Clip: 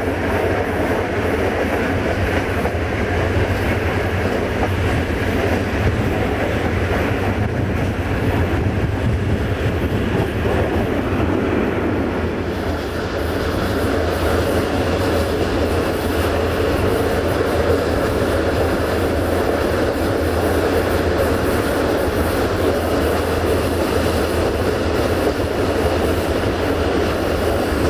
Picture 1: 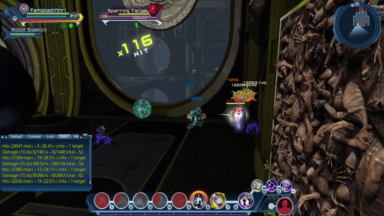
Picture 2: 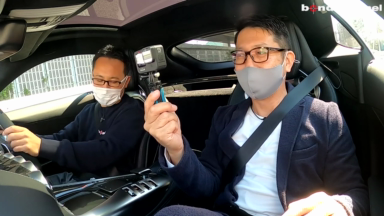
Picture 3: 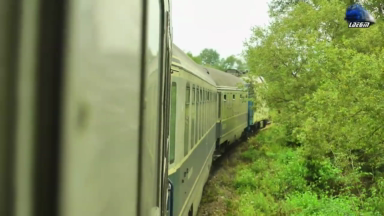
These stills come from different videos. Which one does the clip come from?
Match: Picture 3